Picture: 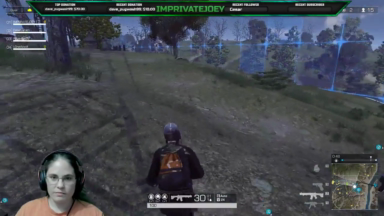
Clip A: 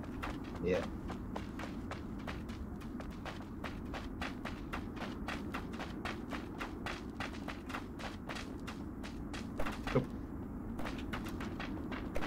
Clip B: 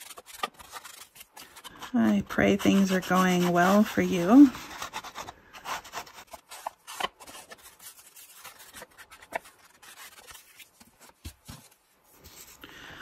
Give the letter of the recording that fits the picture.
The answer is A